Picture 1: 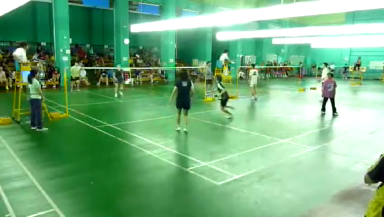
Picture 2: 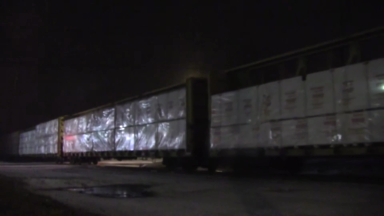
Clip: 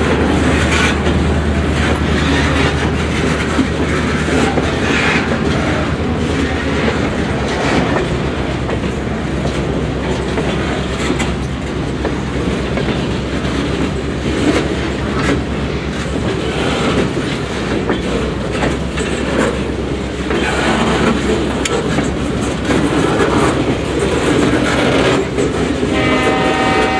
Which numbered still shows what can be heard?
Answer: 2